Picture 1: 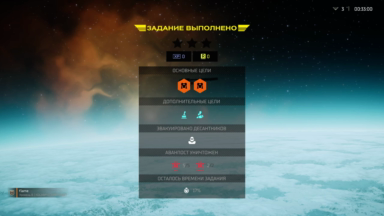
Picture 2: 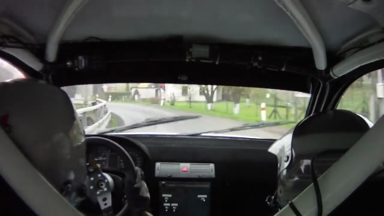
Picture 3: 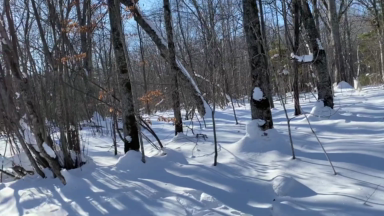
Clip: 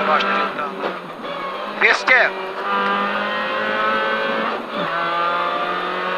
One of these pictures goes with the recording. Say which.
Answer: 2